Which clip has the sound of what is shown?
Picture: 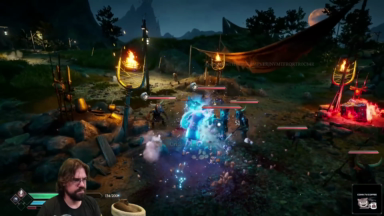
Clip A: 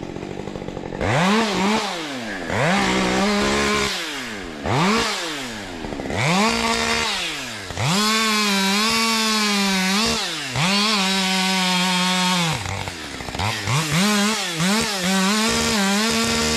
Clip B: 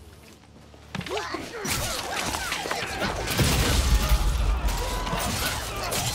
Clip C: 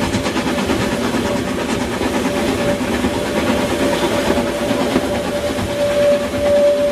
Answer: B